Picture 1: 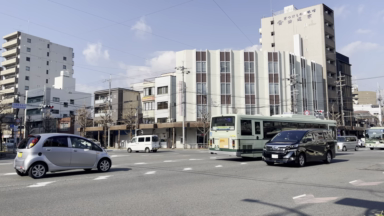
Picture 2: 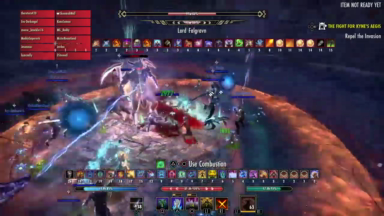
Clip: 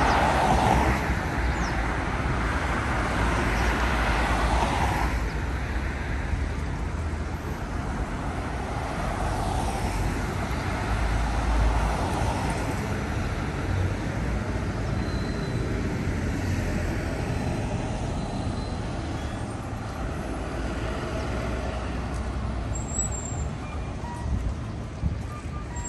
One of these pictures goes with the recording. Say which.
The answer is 1